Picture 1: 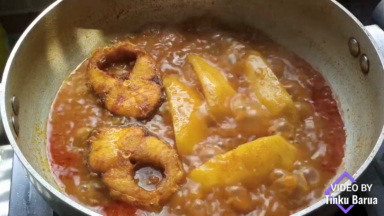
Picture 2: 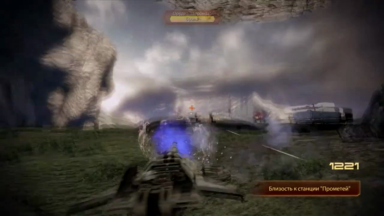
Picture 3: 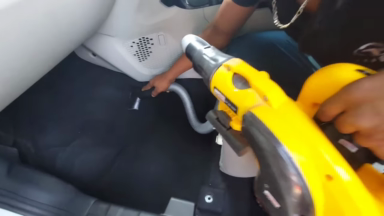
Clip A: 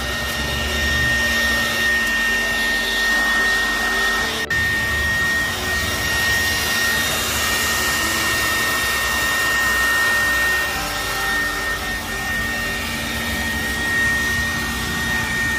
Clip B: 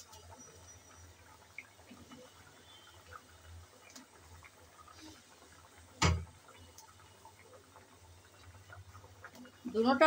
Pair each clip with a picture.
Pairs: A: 3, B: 1